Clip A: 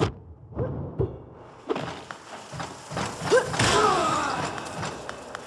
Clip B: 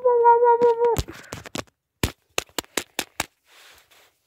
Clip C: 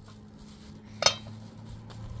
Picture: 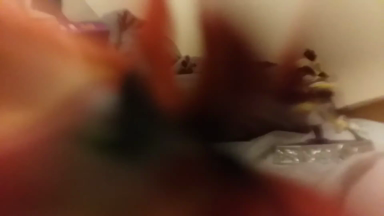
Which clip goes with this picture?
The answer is B